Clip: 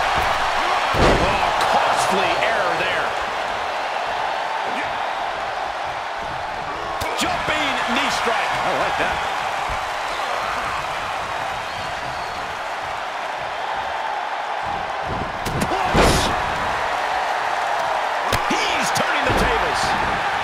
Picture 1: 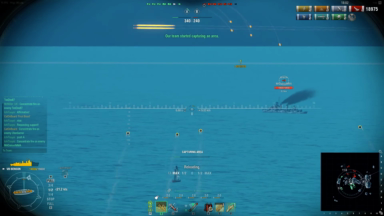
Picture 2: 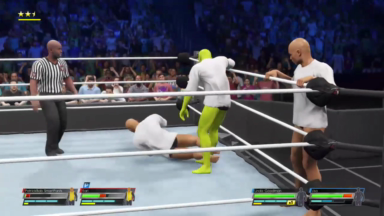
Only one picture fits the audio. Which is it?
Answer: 2